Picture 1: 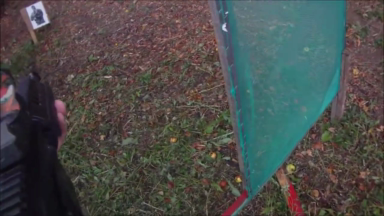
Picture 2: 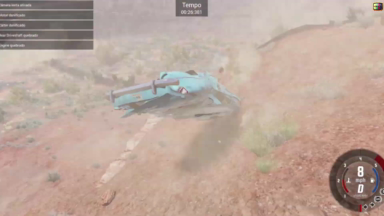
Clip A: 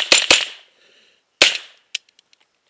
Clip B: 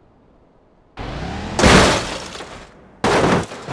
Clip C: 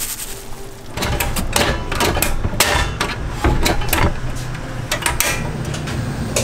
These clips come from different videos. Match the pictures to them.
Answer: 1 A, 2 B